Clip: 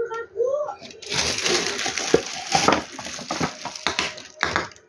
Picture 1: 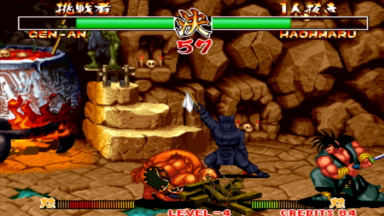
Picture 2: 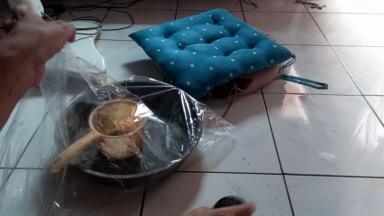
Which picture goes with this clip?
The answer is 2